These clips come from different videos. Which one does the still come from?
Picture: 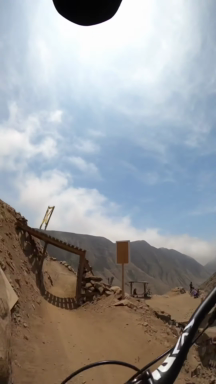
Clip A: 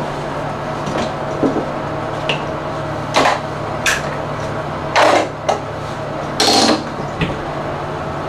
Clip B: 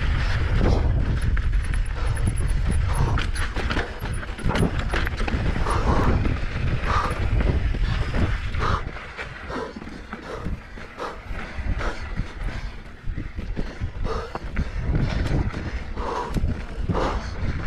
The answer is B